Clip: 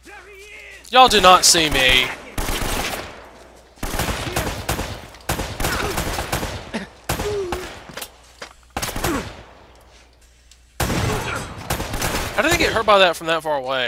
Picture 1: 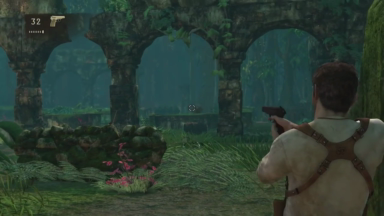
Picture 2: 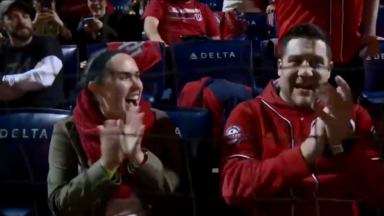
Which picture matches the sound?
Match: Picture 1